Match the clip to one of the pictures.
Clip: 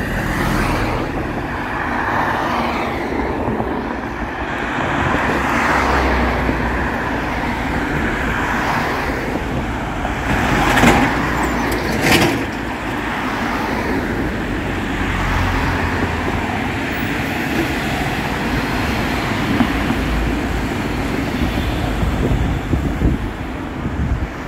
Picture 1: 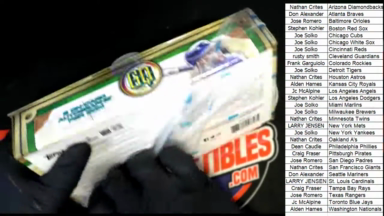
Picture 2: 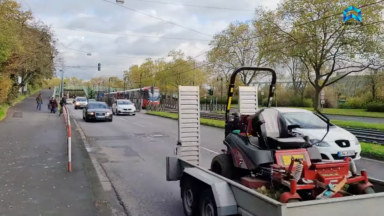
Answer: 2